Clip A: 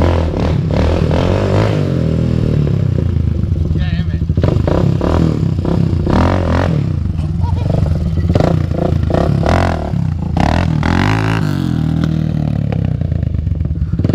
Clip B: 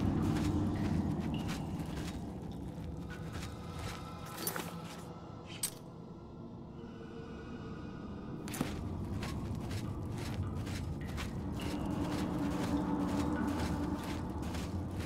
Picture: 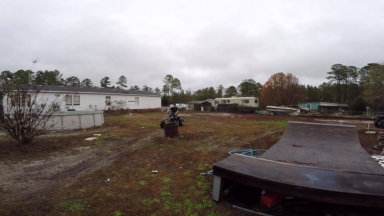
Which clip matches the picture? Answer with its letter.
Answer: A